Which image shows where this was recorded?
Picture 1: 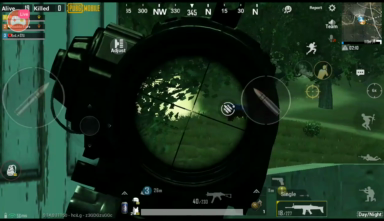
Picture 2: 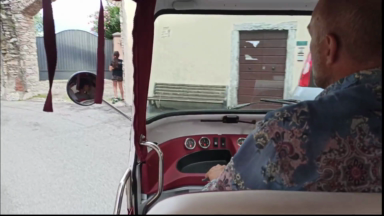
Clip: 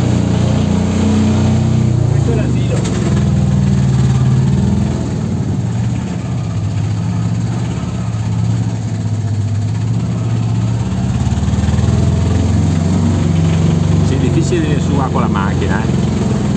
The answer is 2